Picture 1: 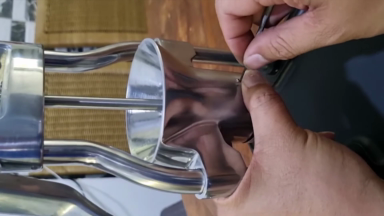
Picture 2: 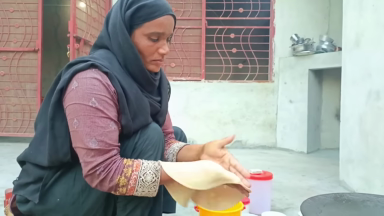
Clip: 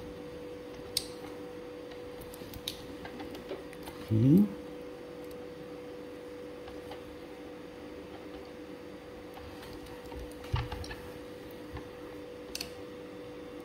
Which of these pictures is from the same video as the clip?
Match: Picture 1